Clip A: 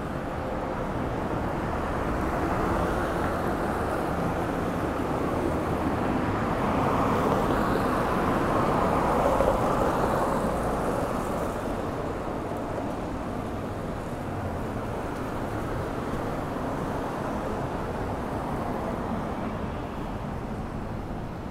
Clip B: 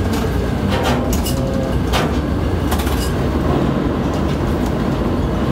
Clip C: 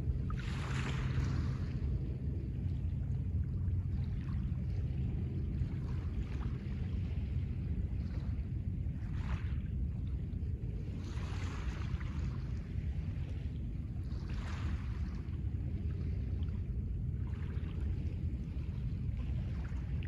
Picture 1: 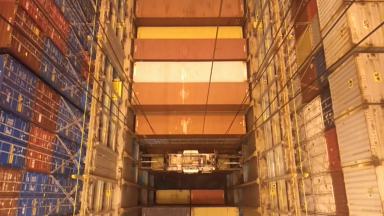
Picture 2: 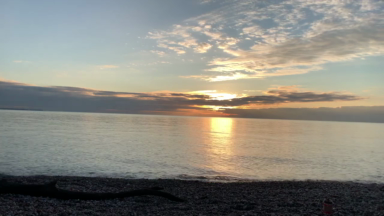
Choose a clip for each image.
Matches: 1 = B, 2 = C